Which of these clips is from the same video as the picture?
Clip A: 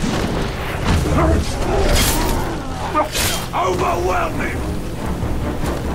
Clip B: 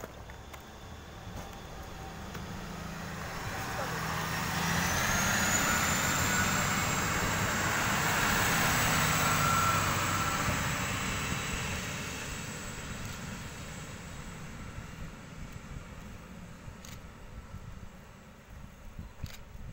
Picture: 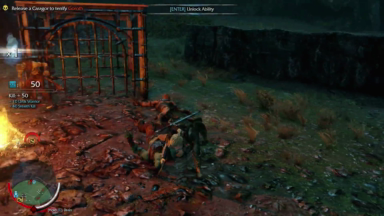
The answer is A